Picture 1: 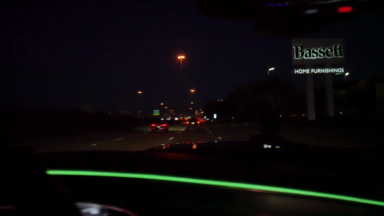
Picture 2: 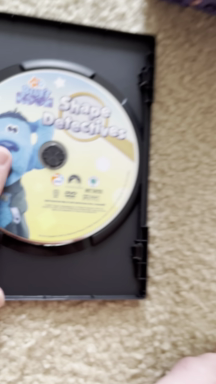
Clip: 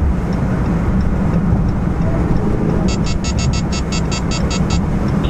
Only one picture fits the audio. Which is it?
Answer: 1